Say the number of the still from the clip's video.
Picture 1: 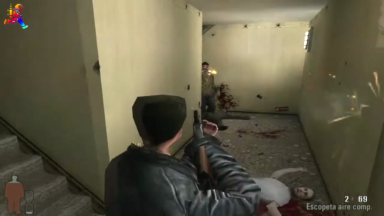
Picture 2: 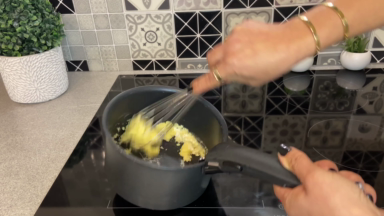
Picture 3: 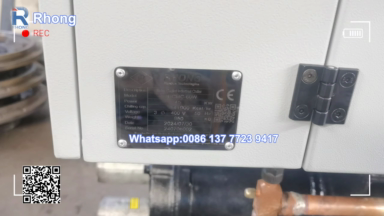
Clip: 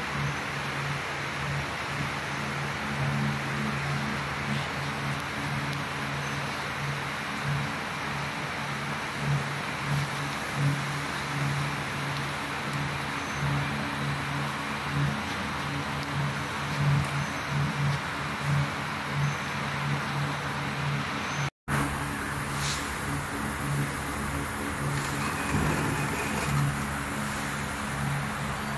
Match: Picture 3